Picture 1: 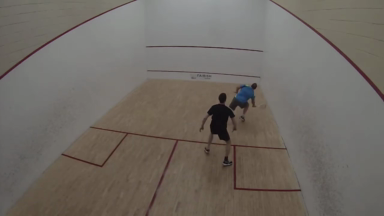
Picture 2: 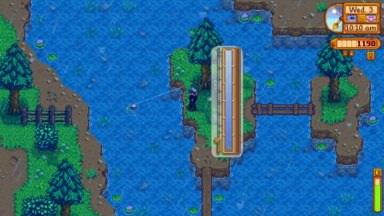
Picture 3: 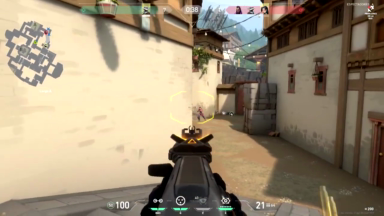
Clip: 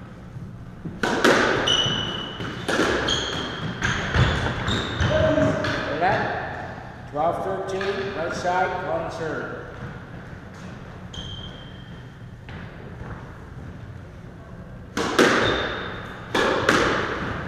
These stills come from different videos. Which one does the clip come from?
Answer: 1